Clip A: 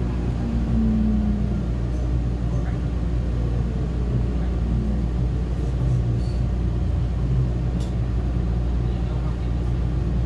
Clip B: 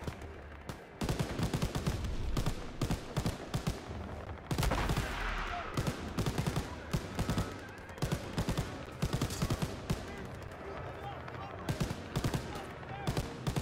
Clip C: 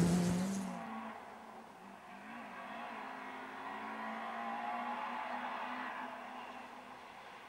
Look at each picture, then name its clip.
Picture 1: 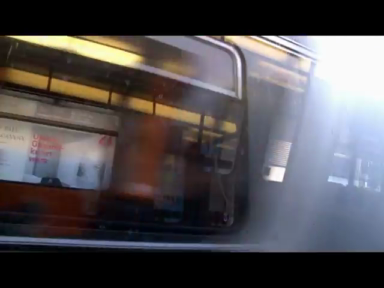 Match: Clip A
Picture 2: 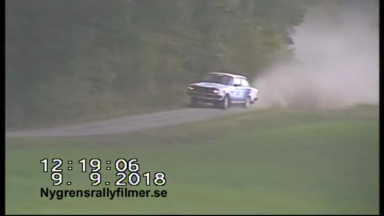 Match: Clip C